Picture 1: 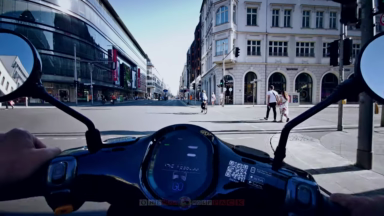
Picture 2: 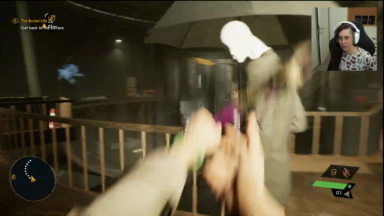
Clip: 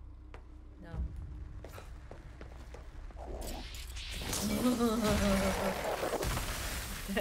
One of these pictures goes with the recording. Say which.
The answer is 2